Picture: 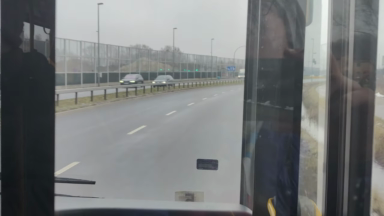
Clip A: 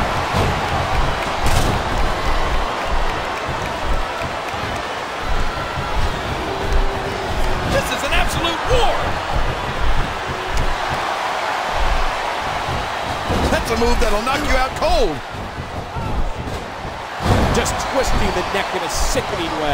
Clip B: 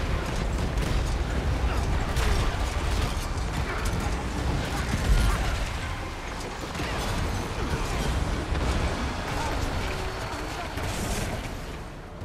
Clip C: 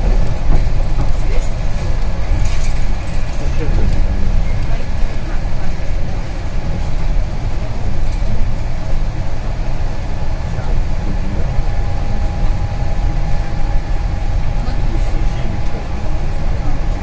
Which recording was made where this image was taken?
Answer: C